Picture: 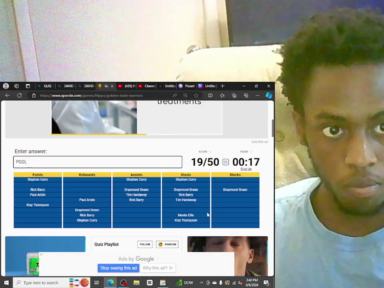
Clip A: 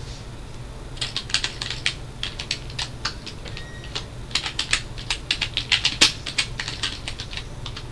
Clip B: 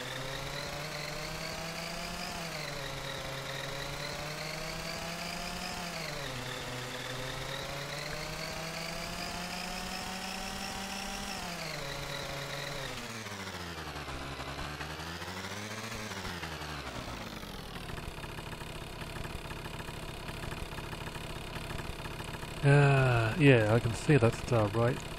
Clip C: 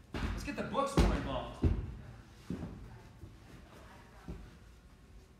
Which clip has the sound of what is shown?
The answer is A